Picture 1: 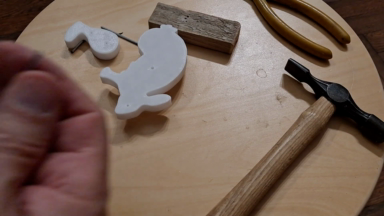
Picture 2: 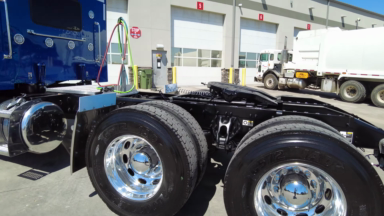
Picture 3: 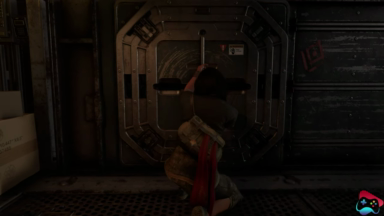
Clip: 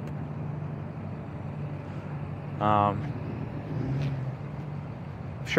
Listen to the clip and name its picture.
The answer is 2